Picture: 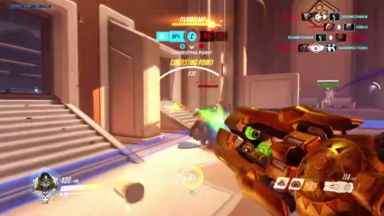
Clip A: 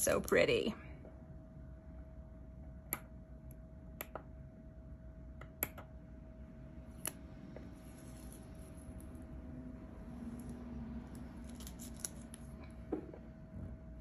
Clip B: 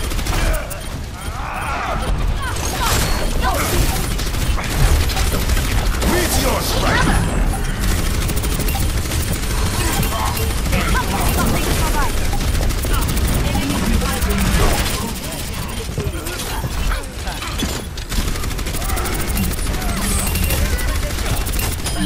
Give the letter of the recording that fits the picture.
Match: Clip B